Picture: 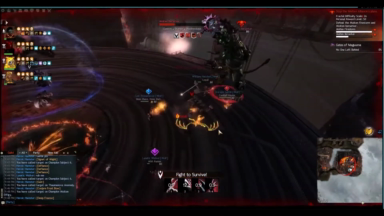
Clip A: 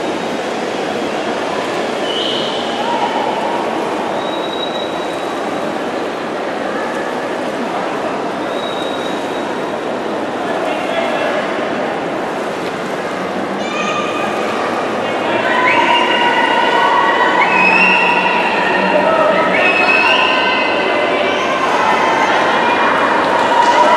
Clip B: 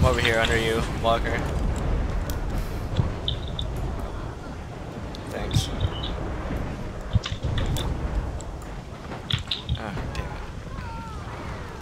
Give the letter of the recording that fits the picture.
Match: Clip B